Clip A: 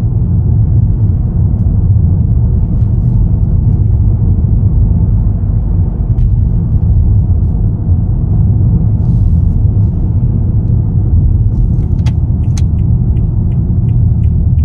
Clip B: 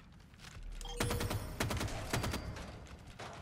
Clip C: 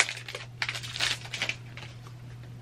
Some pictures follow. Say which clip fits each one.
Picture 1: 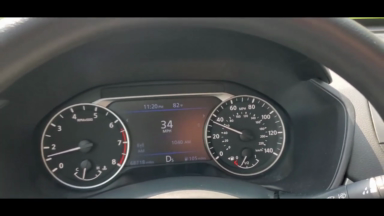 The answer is A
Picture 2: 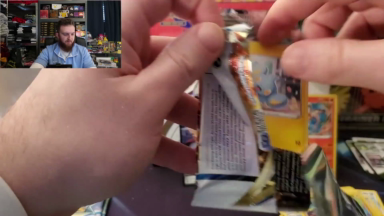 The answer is C